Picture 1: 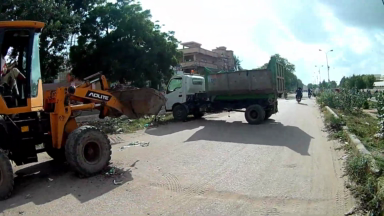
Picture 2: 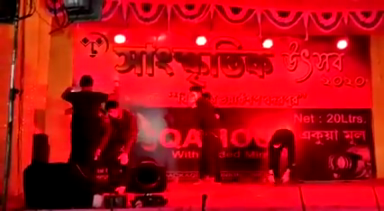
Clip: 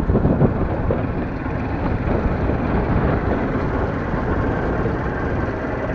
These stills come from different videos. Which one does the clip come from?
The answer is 1